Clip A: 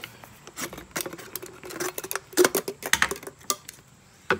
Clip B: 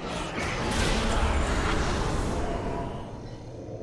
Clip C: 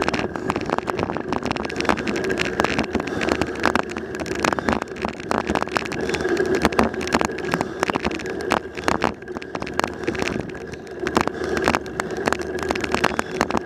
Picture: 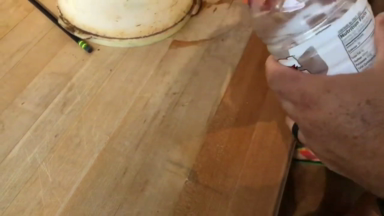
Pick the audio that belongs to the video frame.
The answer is A